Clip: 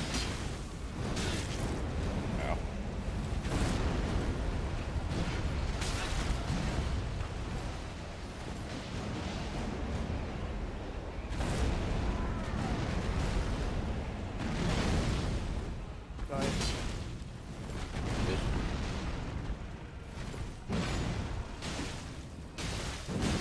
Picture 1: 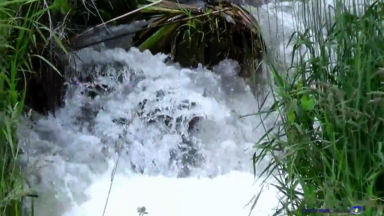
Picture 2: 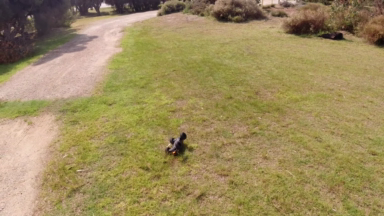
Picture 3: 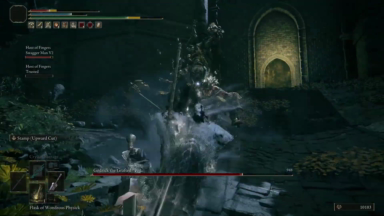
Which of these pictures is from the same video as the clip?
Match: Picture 3